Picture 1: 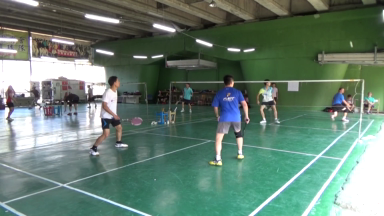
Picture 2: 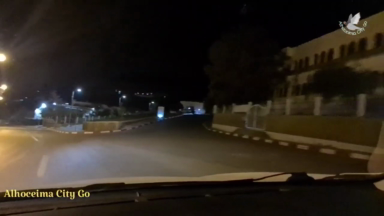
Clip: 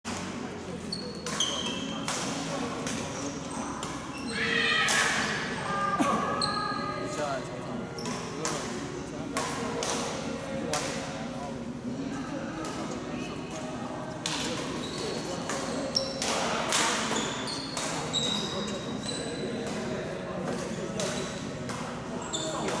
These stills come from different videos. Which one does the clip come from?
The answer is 1